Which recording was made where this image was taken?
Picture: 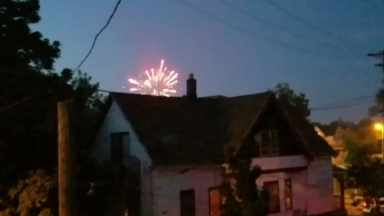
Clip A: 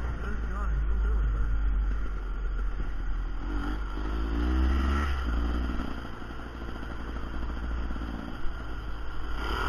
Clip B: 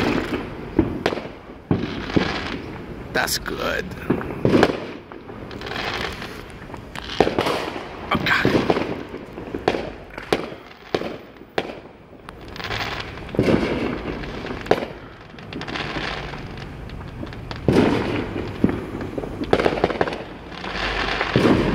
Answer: B